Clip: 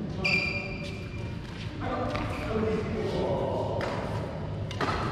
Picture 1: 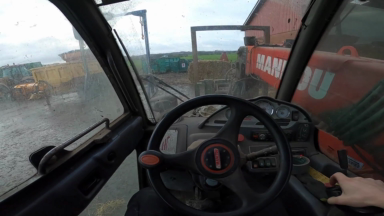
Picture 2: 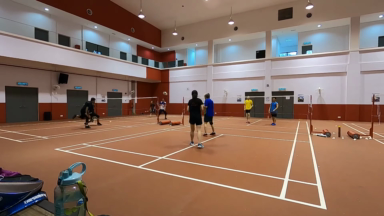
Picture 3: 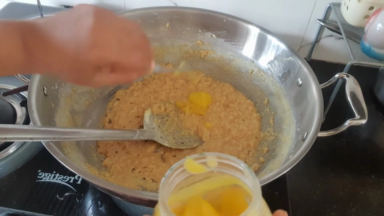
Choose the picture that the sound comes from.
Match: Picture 2